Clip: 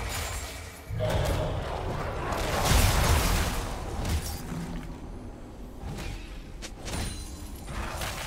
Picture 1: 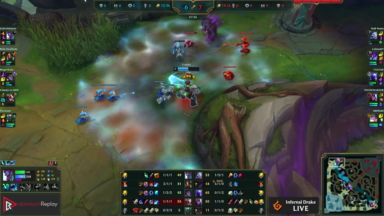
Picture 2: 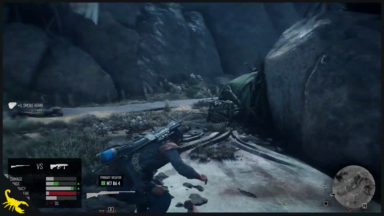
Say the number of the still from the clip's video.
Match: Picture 1